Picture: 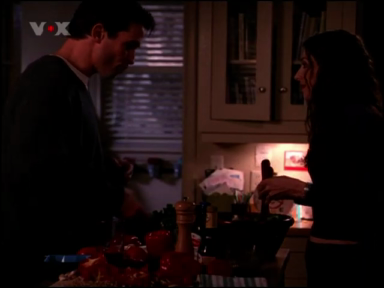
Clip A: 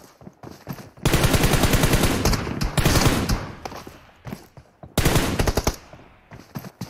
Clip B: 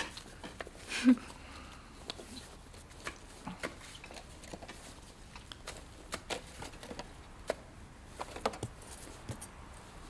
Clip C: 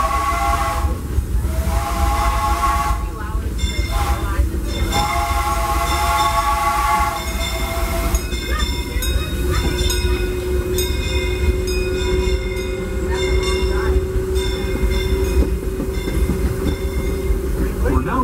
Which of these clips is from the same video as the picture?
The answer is B